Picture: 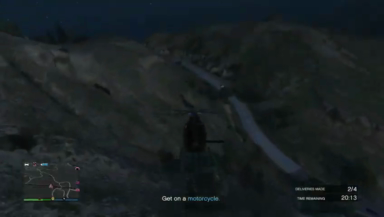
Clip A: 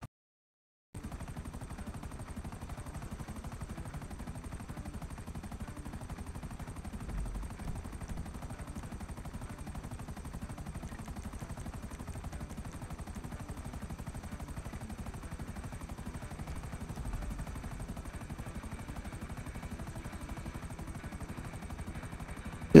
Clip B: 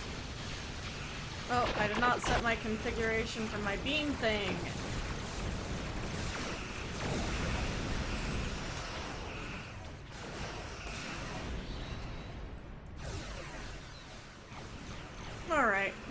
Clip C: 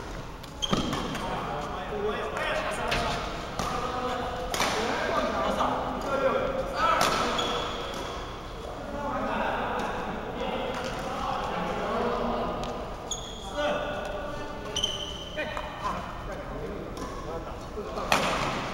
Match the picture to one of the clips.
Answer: A